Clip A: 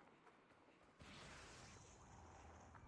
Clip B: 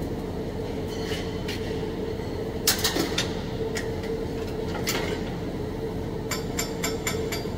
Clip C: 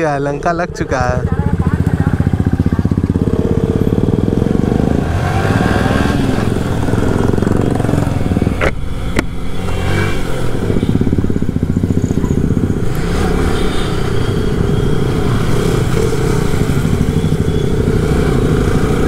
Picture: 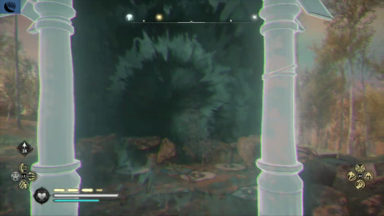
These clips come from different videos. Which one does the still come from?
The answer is A